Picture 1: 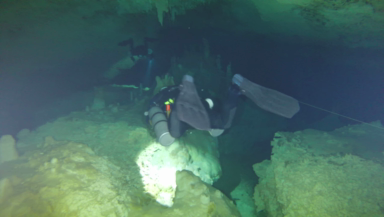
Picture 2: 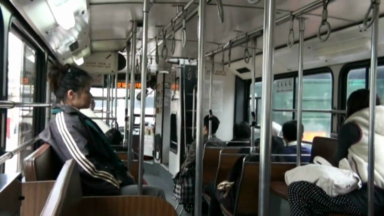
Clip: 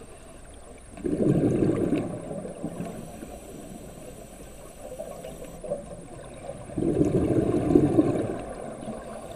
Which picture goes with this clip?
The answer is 1